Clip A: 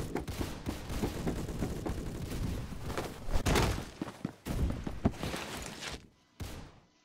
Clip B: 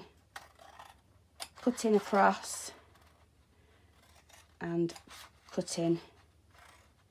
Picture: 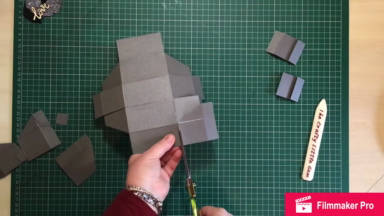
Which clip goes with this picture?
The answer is B